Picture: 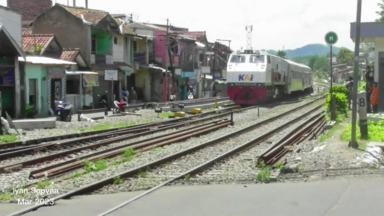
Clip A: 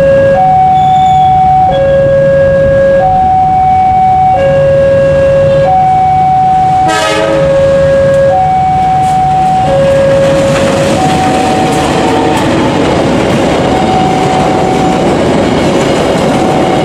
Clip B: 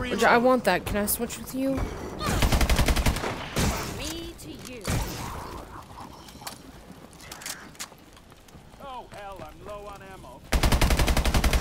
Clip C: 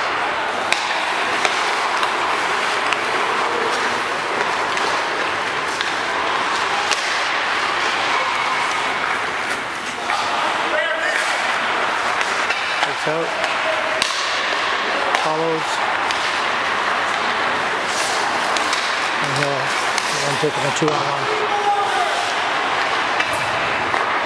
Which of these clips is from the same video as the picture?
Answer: A